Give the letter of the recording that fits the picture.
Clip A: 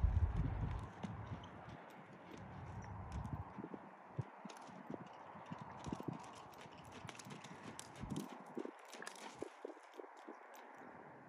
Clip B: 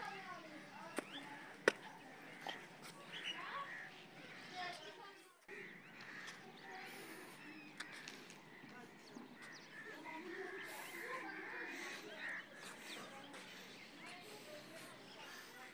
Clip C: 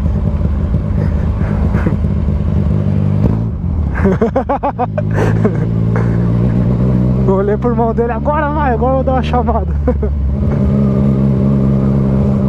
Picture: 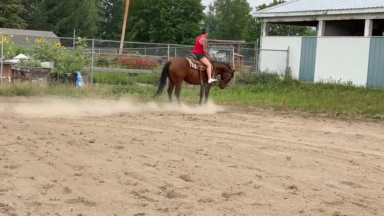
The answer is A